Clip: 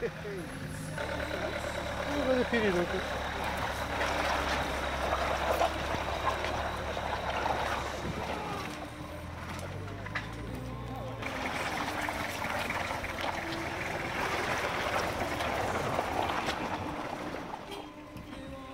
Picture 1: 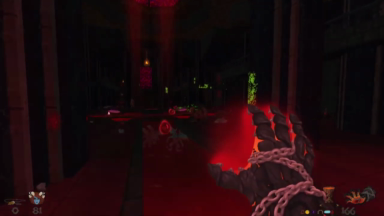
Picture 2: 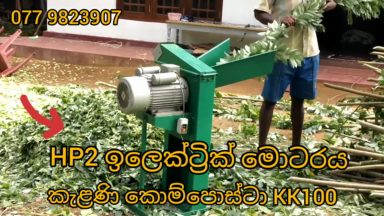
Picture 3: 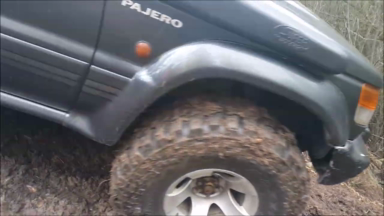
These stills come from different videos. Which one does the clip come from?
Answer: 3